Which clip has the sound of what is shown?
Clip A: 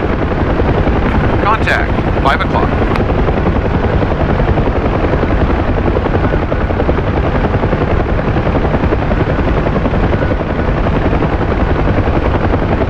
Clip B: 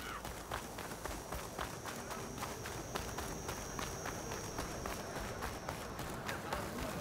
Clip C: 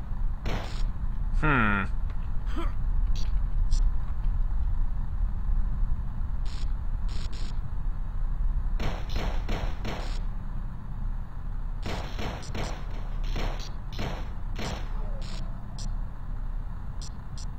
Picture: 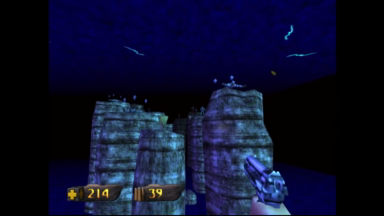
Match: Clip C